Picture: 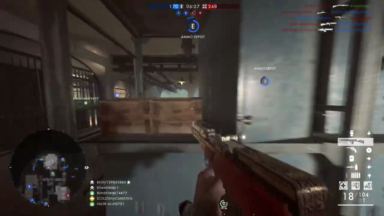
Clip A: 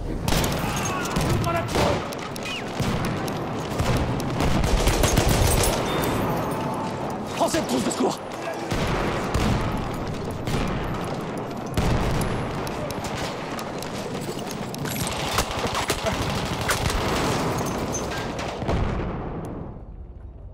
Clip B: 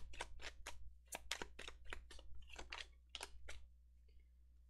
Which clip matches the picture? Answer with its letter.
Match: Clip A